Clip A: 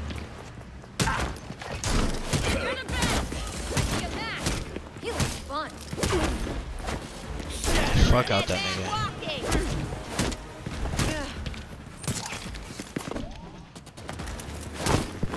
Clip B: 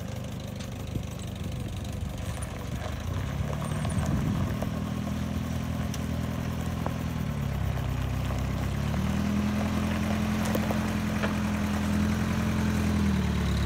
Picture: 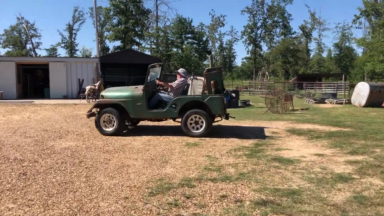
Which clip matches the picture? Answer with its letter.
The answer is B